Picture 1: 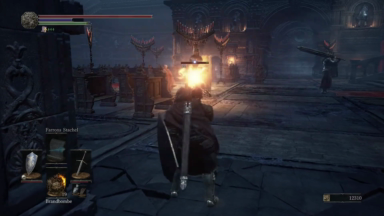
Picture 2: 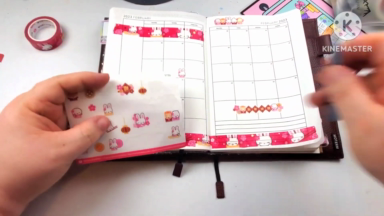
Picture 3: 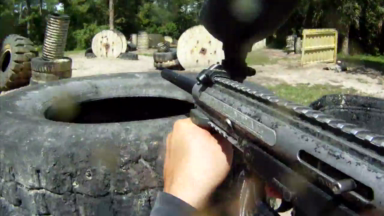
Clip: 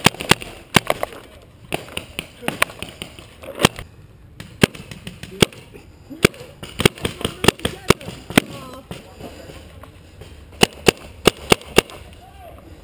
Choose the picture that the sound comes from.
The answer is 3